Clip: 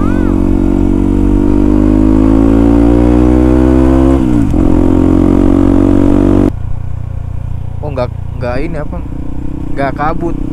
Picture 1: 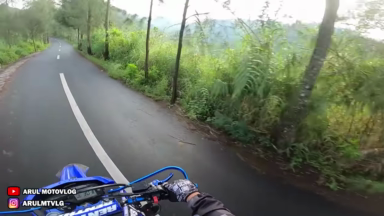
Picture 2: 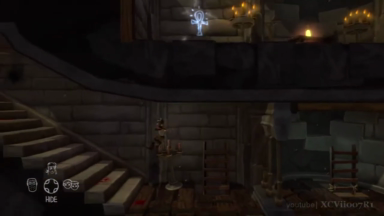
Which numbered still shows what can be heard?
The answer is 1